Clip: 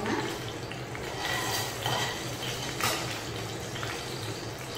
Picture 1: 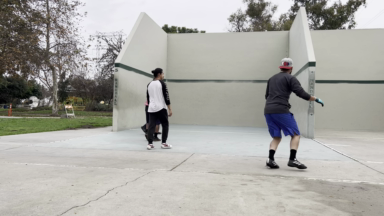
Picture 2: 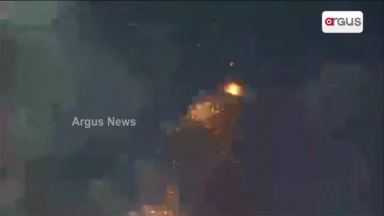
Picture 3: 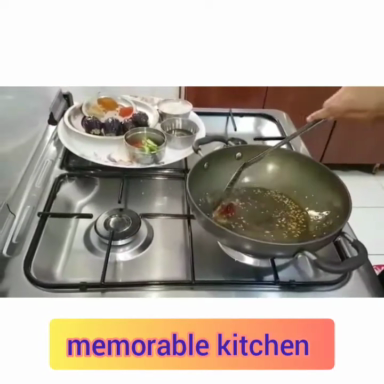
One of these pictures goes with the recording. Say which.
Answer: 3